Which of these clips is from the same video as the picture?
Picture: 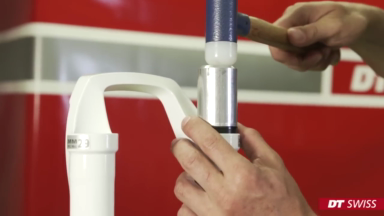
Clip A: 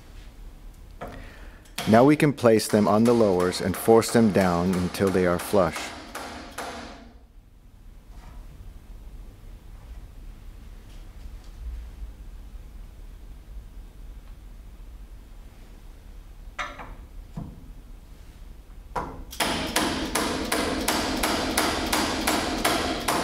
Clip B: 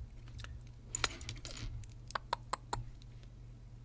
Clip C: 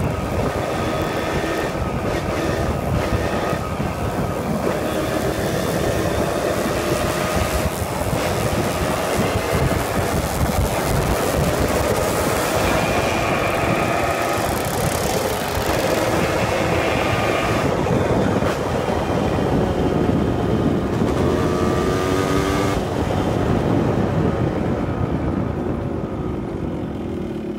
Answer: A